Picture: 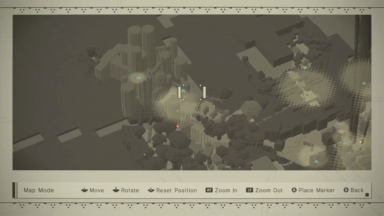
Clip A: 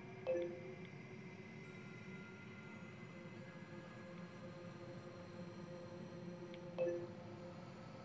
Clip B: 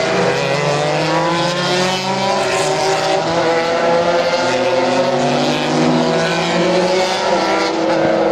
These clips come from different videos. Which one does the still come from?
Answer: A